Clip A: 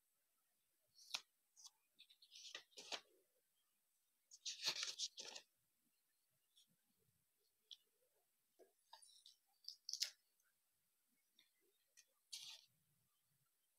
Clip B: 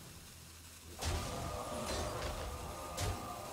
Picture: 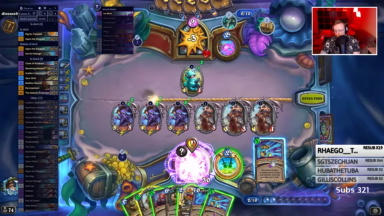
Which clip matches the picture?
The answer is B